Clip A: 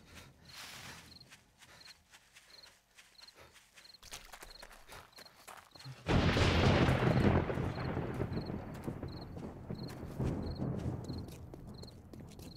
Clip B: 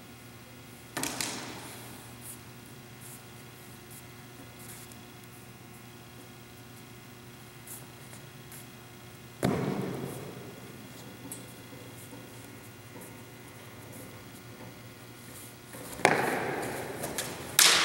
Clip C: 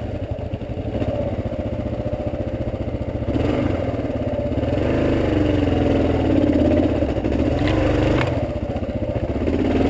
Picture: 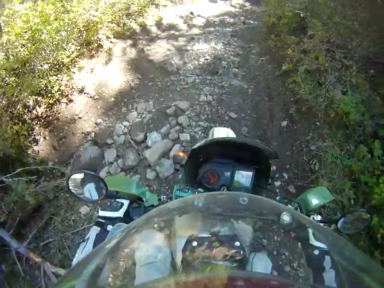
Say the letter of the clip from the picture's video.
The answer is C